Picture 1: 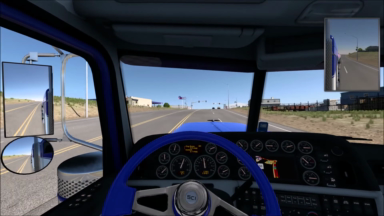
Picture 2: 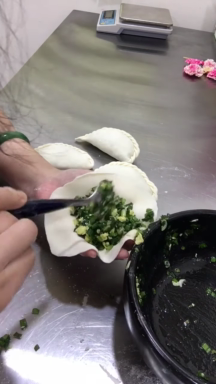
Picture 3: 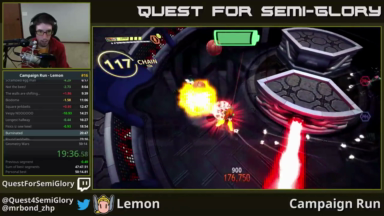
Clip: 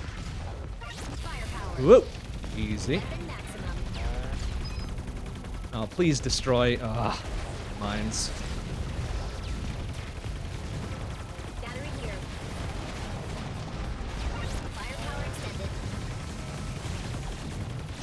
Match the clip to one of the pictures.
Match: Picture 3